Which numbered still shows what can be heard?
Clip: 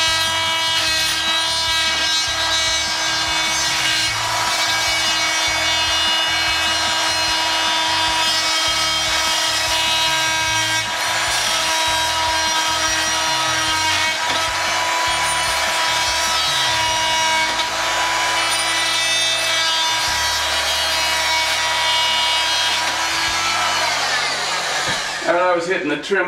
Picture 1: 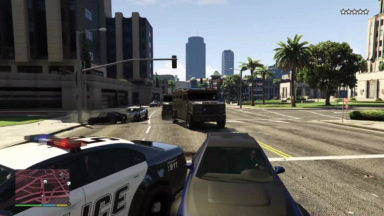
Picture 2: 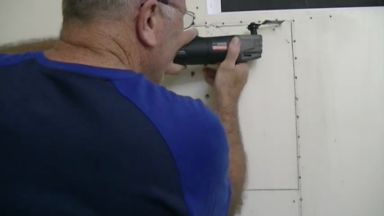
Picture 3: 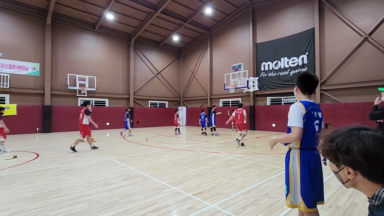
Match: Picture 2